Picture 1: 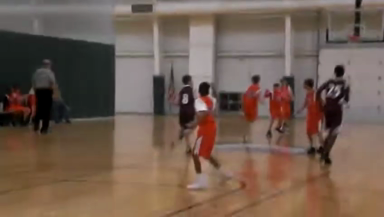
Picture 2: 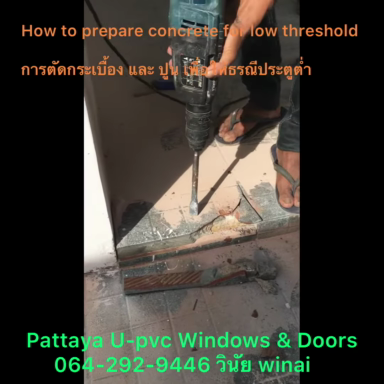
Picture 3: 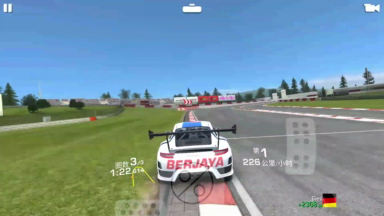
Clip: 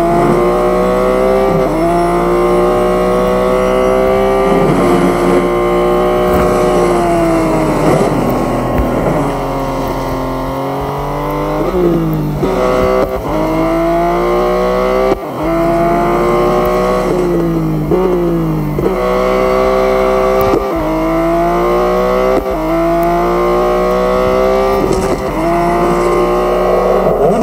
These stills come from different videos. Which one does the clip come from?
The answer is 3